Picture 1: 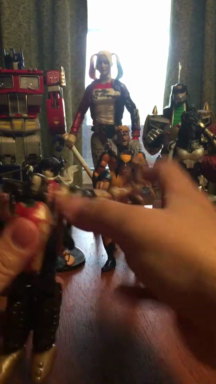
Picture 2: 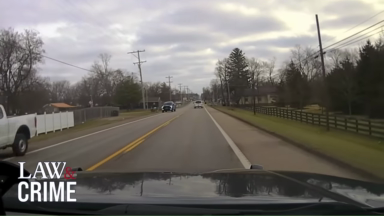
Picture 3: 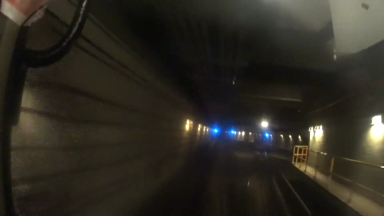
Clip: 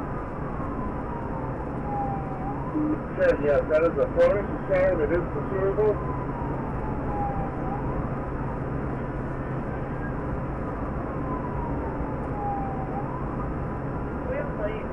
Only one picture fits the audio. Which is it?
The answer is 2